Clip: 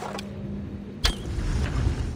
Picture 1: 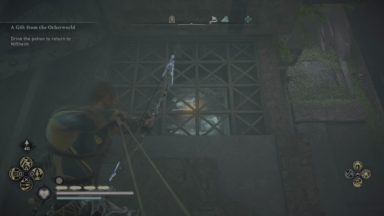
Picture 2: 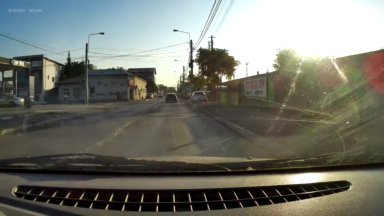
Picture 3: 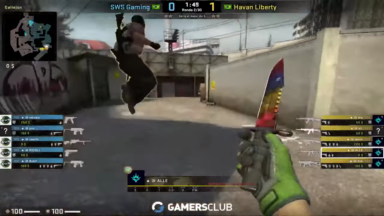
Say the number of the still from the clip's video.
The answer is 1